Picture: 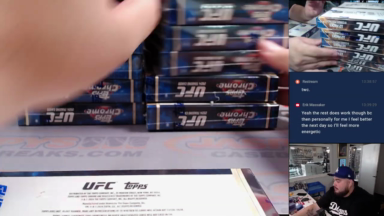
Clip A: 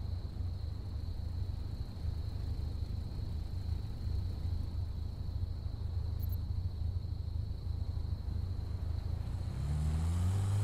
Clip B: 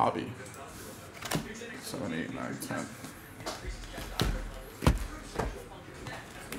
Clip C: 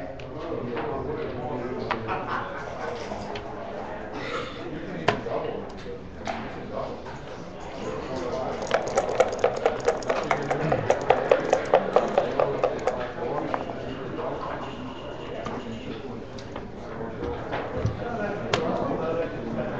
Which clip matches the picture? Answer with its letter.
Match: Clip B